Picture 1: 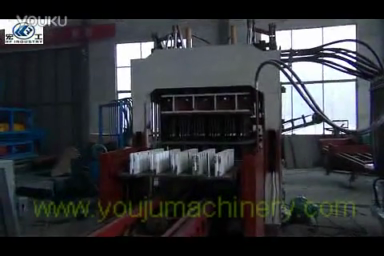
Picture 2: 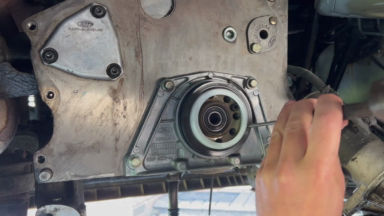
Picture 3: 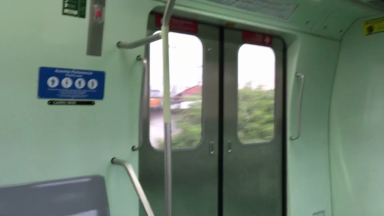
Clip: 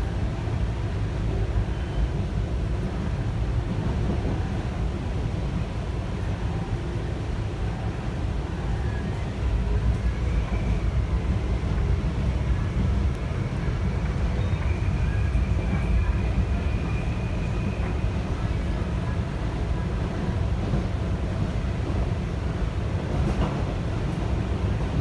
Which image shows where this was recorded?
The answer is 3